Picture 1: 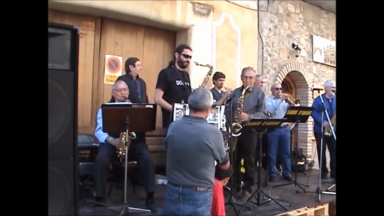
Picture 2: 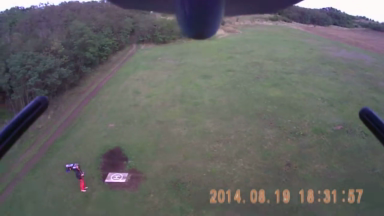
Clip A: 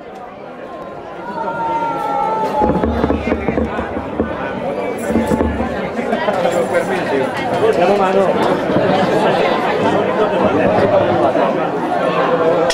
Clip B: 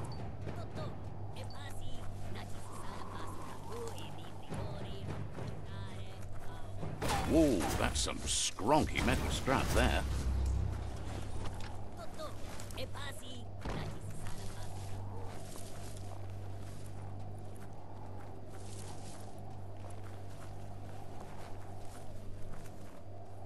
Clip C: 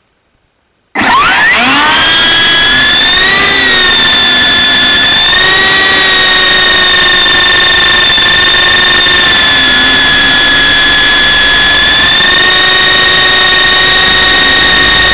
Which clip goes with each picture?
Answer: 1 A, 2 C